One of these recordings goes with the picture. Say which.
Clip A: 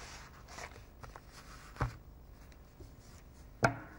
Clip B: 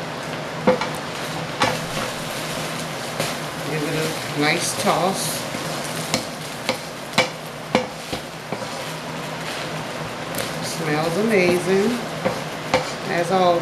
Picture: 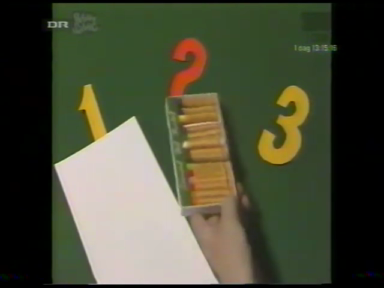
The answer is A